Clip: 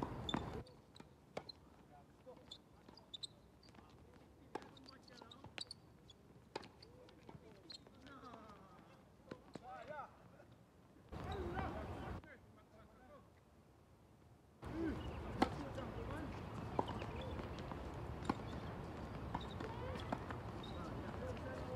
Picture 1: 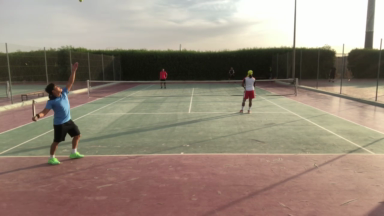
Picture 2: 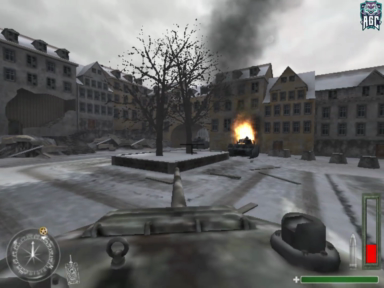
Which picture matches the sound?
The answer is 1